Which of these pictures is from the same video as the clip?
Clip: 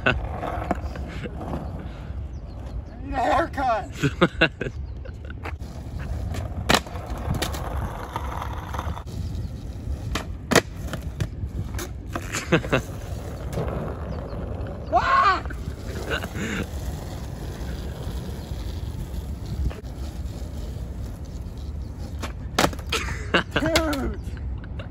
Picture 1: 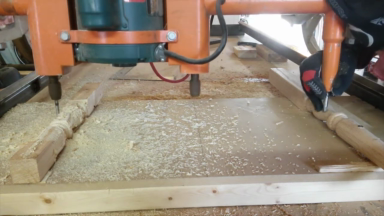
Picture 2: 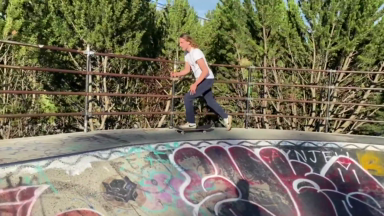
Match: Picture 2